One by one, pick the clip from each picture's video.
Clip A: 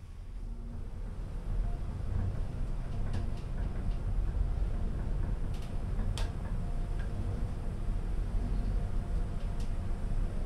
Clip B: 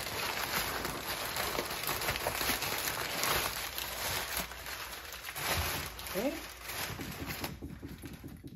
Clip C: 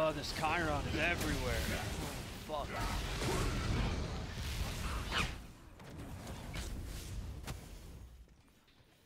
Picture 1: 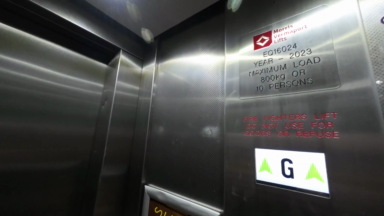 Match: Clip A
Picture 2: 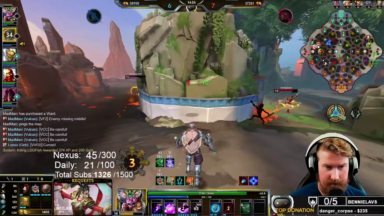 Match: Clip C